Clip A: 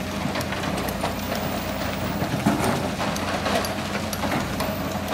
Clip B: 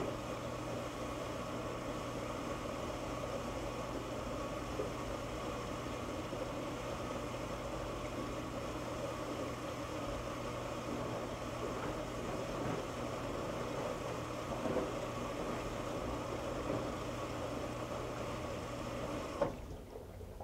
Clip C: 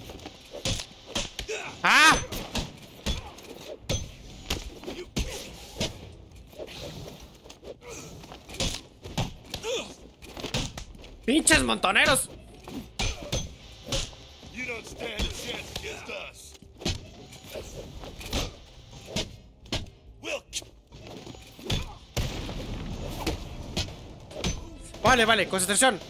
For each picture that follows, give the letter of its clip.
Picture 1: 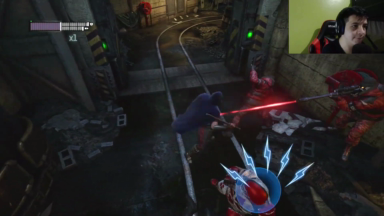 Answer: C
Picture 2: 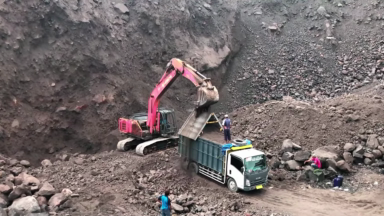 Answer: A